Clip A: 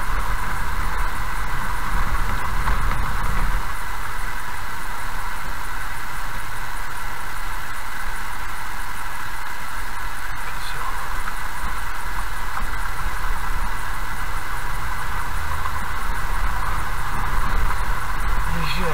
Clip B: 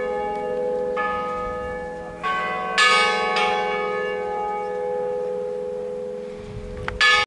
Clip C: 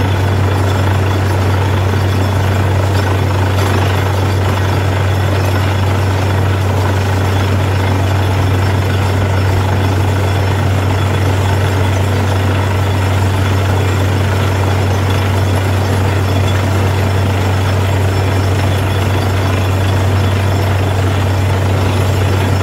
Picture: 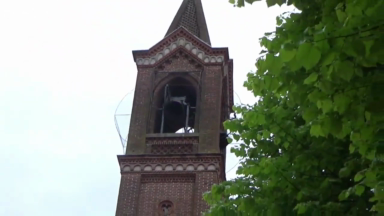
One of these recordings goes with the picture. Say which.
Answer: B